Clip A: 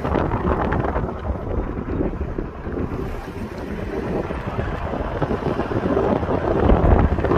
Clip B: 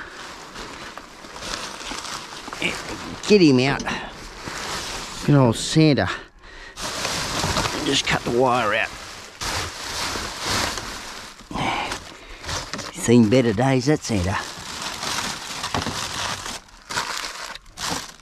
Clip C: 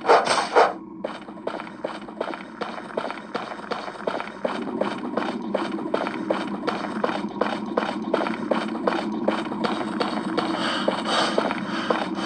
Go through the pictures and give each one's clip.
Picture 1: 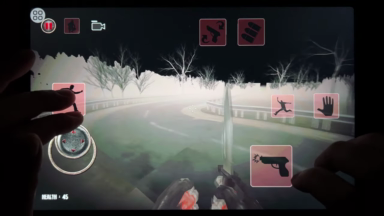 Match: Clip C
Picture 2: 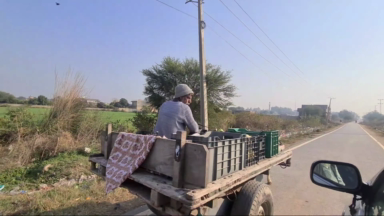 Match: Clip A